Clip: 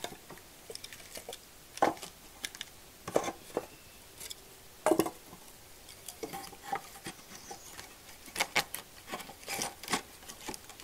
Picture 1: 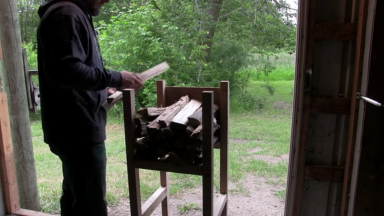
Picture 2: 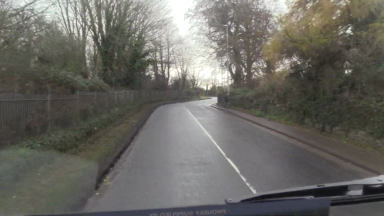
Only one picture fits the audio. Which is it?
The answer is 1